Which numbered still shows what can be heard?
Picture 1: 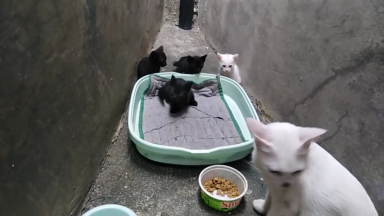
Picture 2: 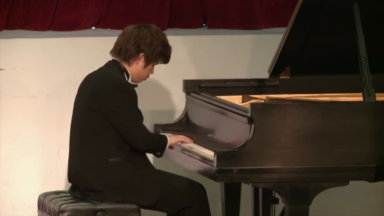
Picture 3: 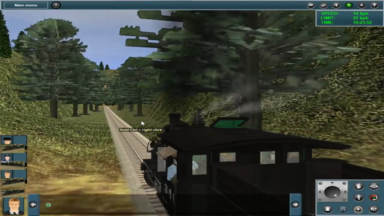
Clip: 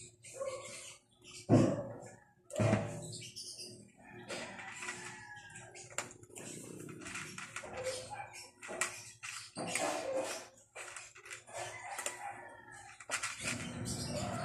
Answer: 1